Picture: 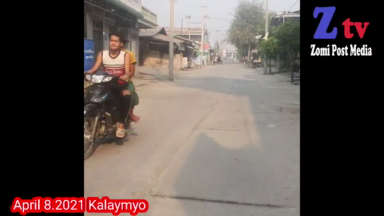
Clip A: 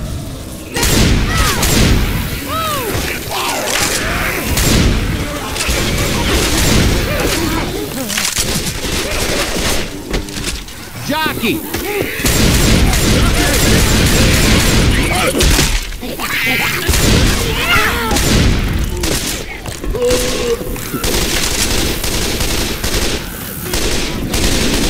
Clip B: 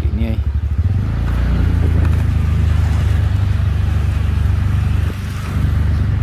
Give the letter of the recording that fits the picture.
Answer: B